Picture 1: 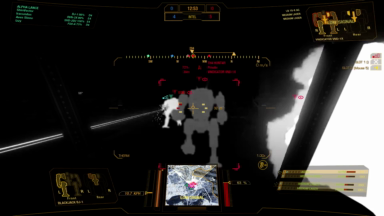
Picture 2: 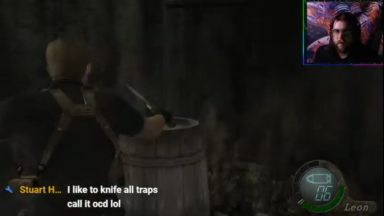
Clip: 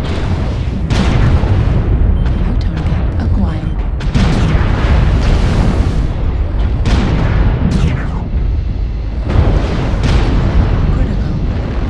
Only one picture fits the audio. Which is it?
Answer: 1